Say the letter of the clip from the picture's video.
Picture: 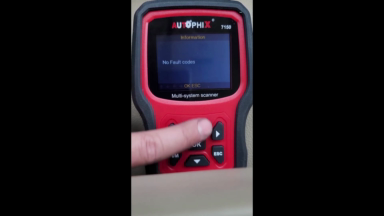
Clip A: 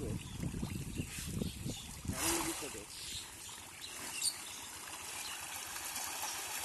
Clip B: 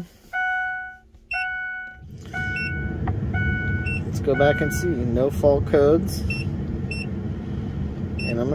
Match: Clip B